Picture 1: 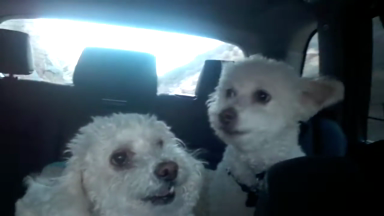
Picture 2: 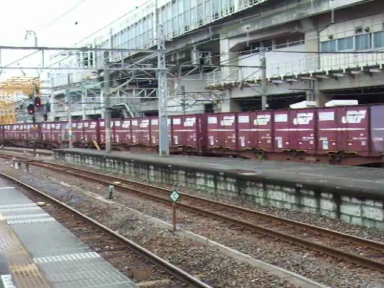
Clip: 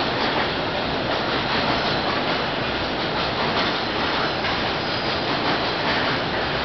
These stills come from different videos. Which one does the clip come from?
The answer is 2